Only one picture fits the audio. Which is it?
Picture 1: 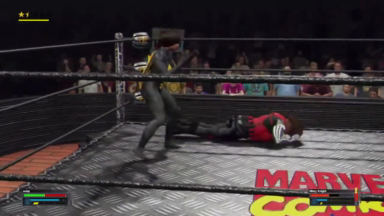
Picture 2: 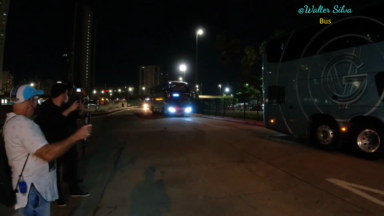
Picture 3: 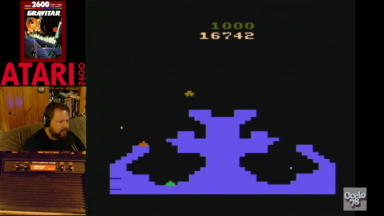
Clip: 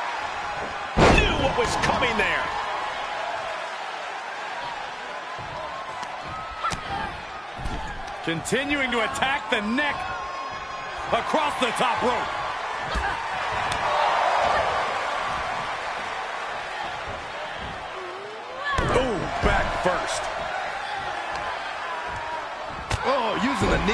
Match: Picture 1